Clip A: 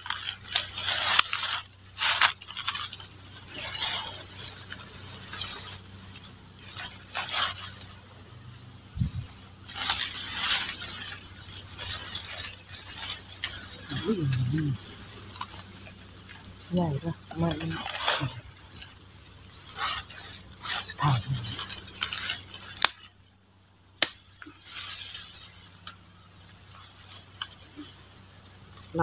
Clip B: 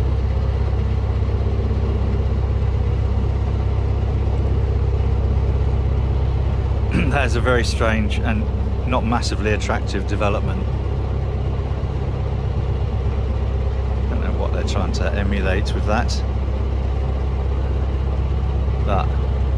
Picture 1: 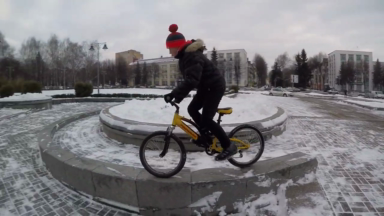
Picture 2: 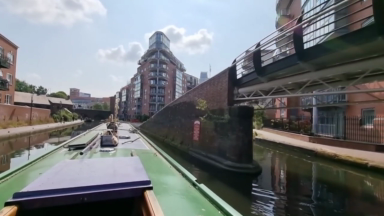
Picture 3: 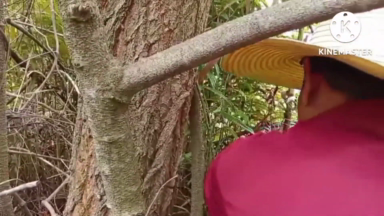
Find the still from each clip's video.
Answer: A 3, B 2